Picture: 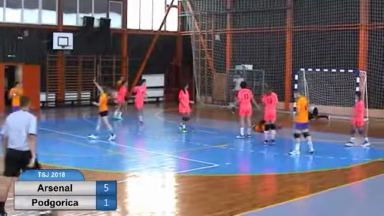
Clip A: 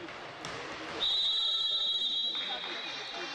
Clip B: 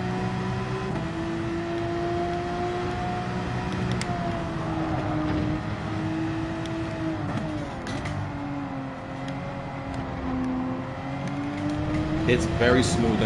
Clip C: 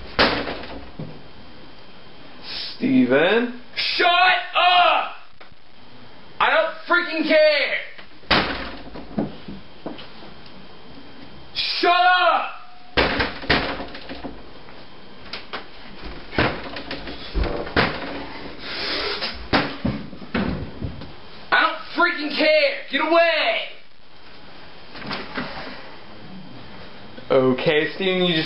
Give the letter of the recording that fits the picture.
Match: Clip A